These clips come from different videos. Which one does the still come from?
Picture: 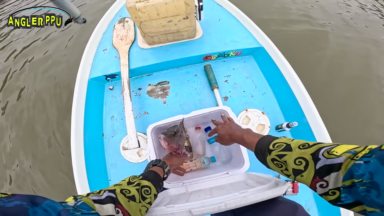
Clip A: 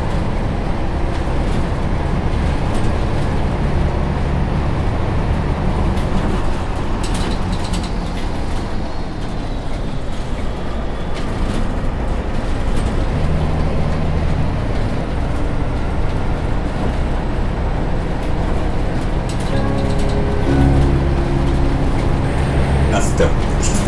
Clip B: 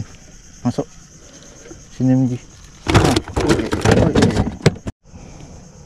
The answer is B